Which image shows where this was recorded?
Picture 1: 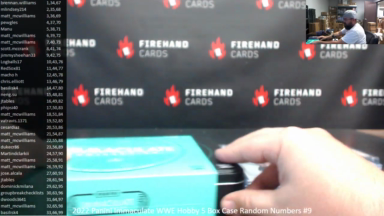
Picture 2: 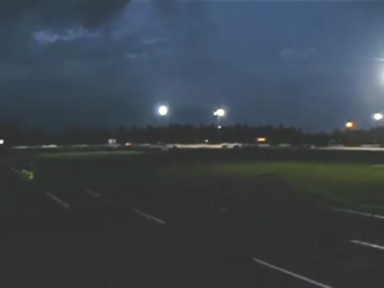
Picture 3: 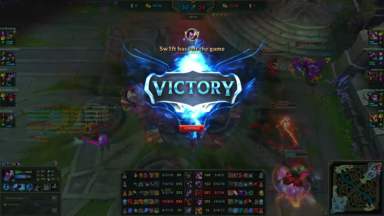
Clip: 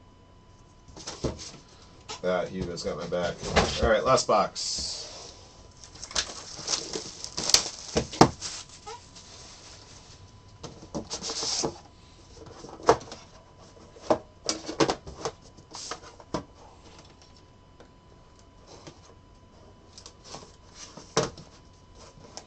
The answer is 1